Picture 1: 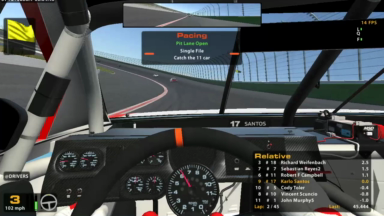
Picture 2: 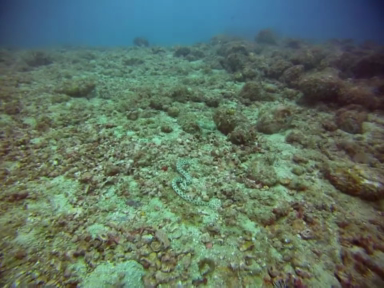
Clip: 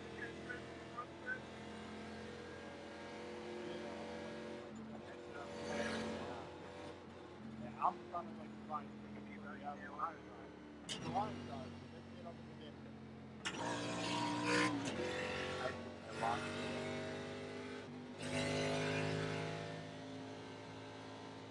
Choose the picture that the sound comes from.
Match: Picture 1